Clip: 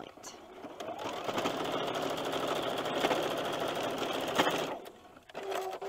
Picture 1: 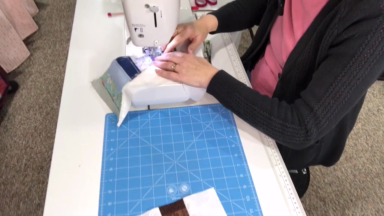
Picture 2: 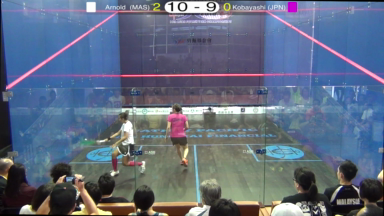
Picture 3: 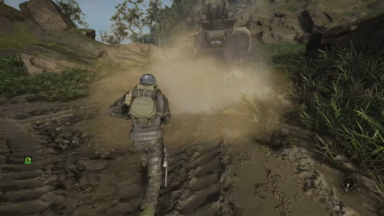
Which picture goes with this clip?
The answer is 1